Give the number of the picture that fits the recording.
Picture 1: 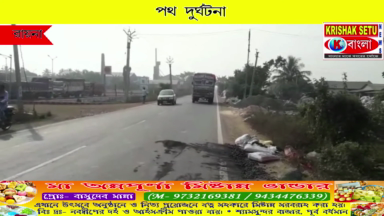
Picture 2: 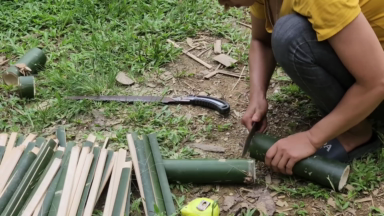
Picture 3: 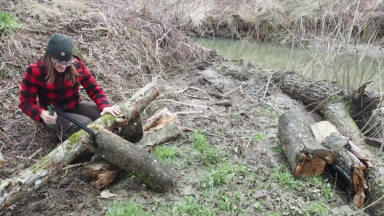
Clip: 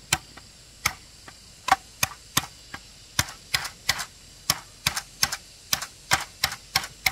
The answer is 2